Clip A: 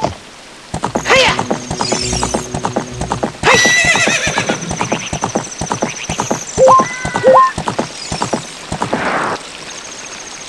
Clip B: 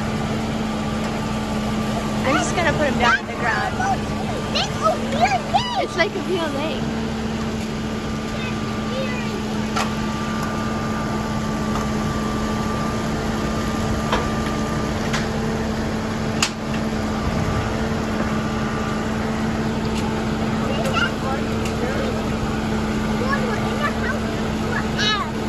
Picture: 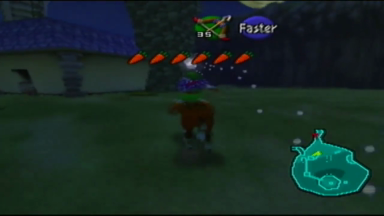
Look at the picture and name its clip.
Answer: A